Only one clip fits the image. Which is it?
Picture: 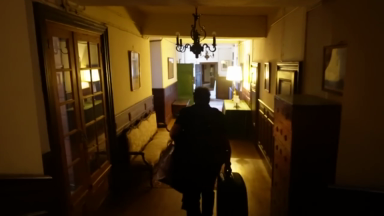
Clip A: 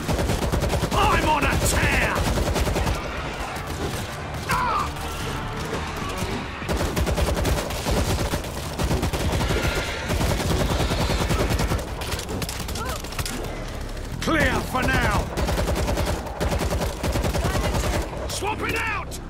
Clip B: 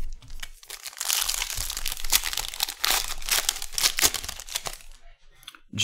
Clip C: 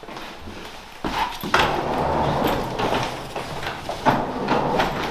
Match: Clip C